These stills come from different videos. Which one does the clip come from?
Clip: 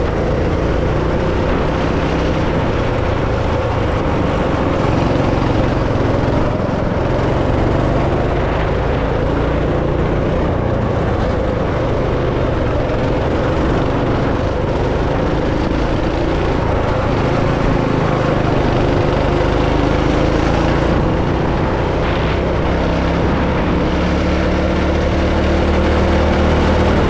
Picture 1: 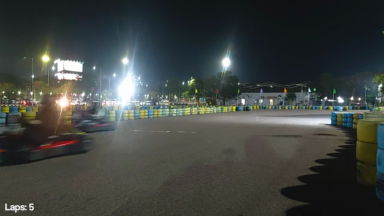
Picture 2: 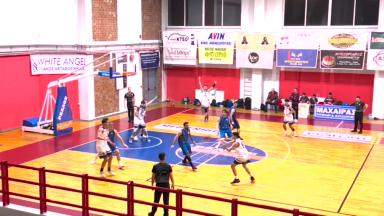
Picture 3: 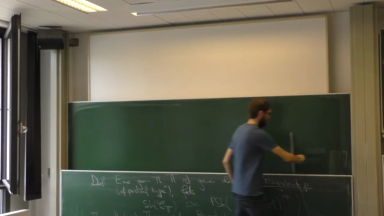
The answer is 1